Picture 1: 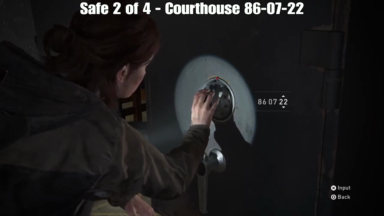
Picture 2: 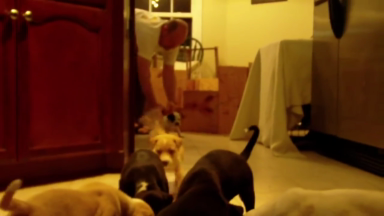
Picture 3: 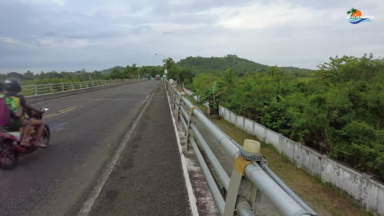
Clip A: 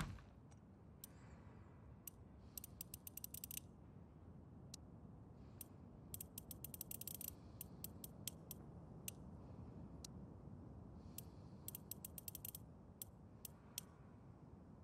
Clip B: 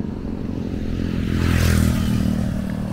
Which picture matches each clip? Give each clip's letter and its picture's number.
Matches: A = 1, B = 3